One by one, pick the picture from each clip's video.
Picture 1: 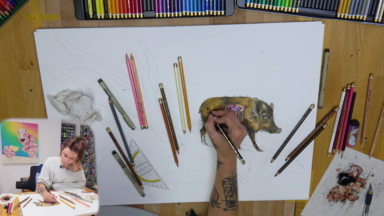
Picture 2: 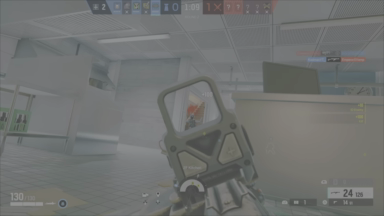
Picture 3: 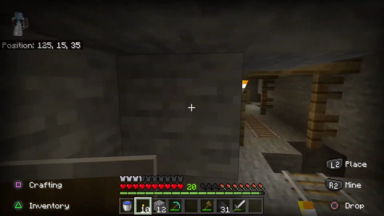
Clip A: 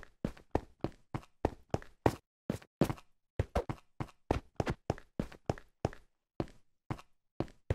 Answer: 3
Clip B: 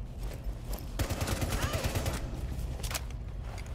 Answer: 2